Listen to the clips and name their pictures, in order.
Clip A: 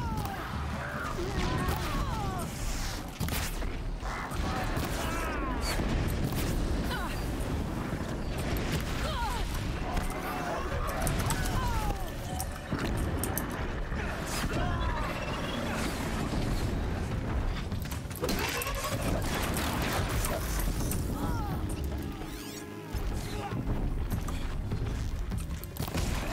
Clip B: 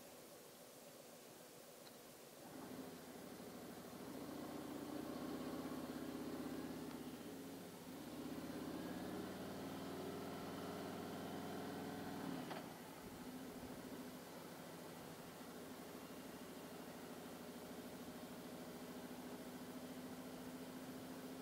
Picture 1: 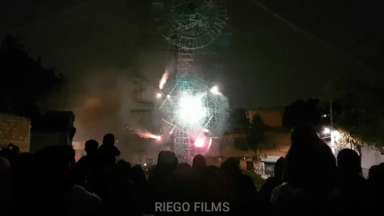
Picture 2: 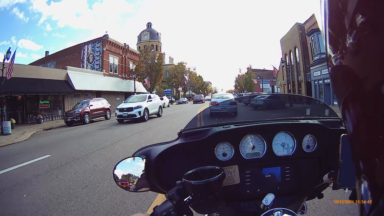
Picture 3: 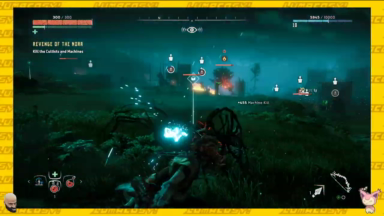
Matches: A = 3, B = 2